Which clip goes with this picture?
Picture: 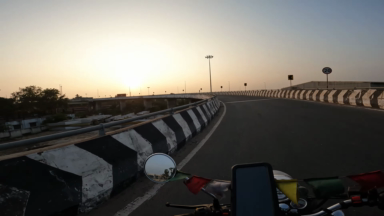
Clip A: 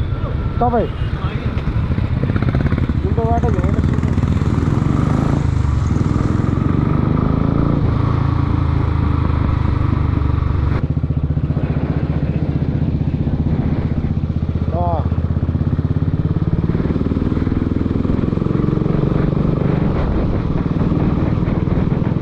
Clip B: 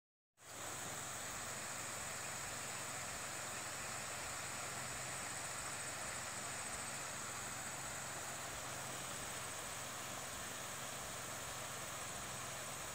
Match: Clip A